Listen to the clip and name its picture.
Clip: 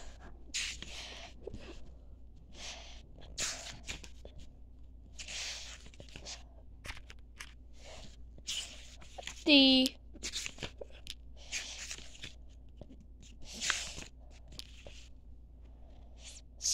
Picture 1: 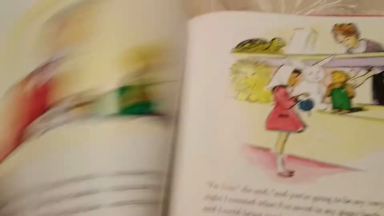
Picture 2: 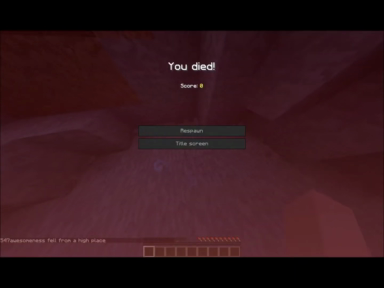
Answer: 1